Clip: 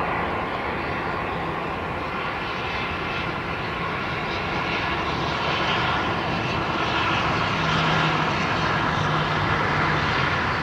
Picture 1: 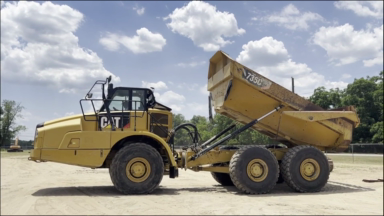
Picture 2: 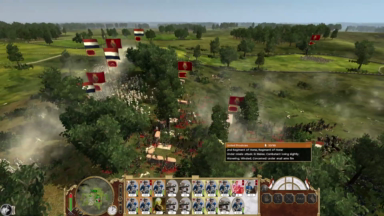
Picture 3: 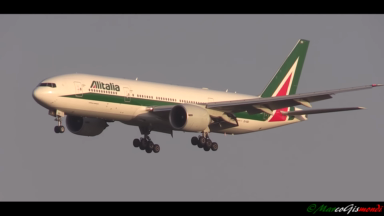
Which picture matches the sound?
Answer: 3